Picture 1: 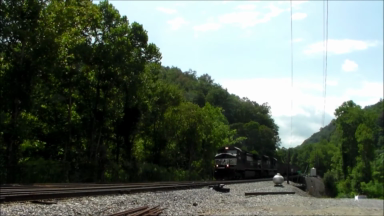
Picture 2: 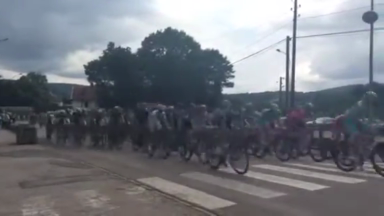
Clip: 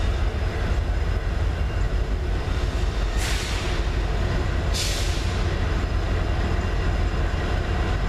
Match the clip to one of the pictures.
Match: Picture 1